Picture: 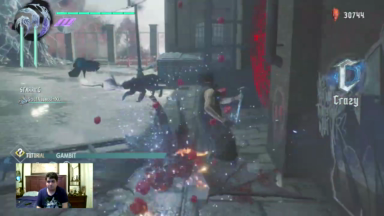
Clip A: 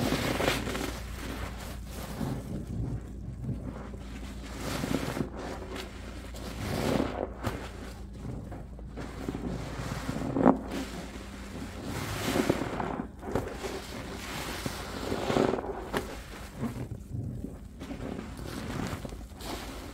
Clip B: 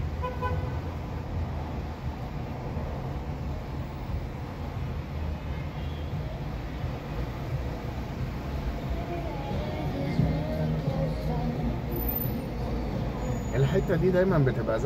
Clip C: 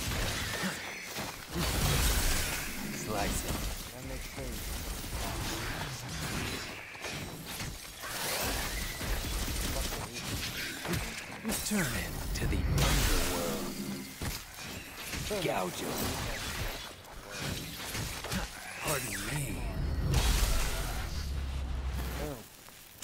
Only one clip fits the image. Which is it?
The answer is C